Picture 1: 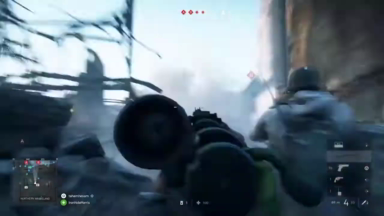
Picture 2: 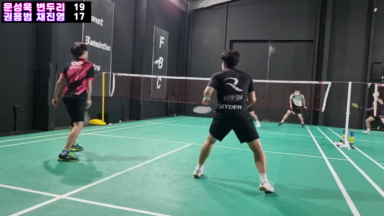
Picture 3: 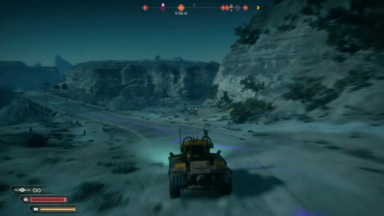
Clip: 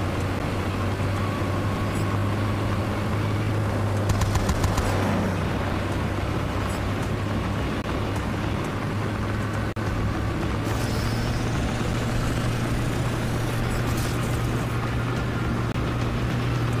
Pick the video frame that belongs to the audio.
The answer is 3